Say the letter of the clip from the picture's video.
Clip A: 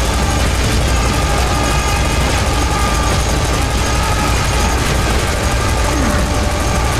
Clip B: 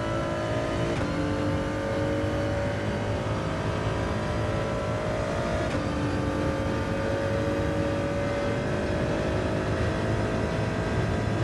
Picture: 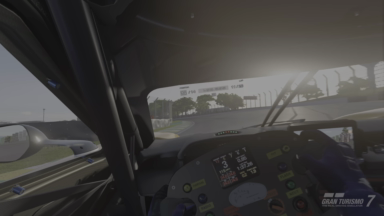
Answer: B